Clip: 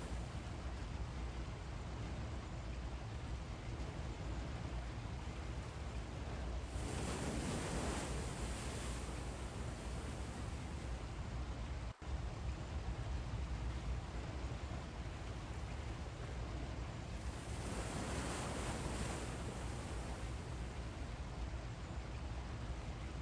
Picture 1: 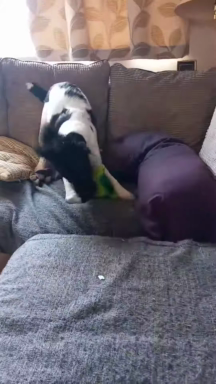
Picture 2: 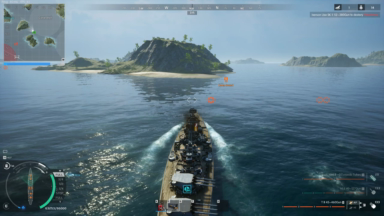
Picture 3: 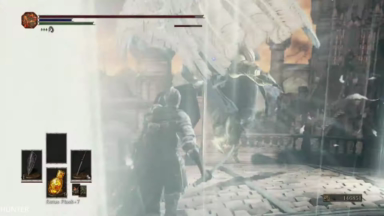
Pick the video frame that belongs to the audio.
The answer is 2